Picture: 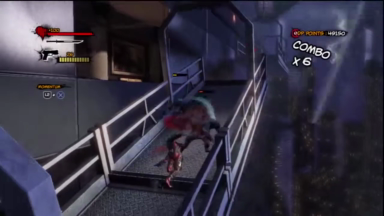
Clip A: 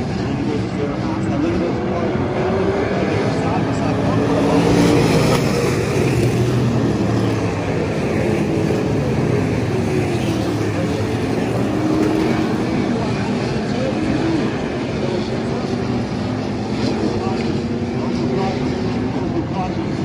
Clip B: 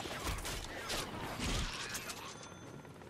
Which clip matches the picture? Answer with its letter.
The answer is B